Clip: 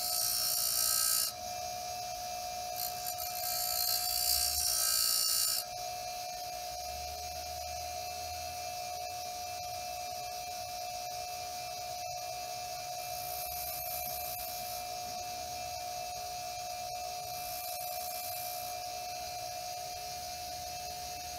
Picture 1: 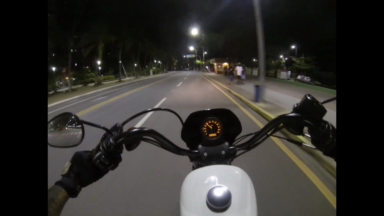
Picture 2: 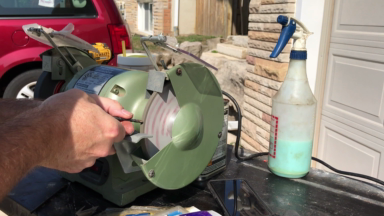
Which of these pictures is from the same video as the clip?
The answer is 2